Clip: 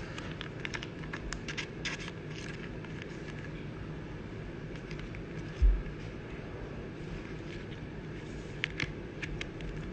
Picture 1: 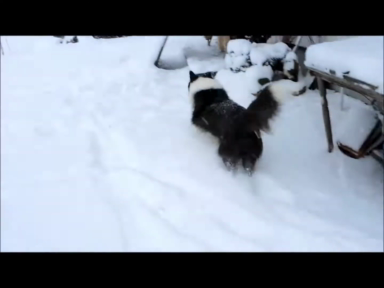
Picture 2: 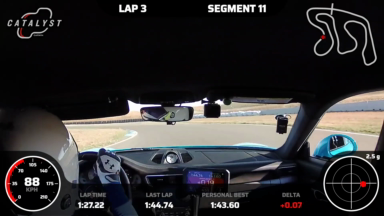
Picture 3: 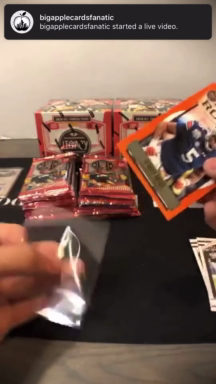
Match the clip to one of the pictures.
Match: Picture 3